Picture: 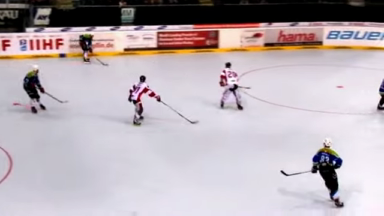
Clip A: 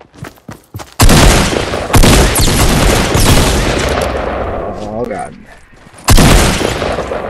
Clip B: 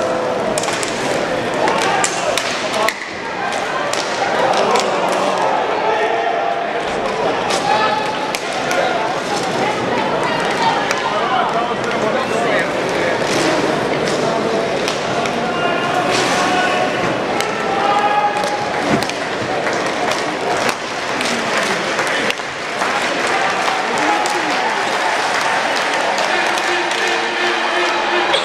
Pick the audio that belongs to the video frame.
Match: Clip B